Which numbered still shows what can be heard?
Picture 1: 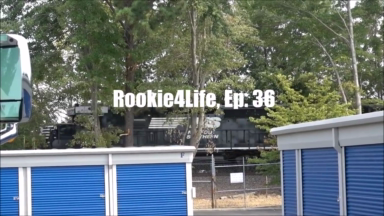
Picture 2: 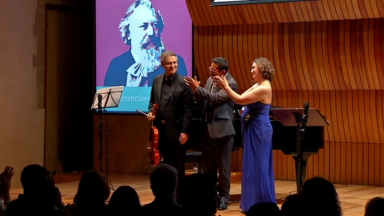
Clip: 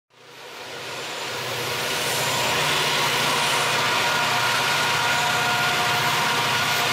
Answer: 1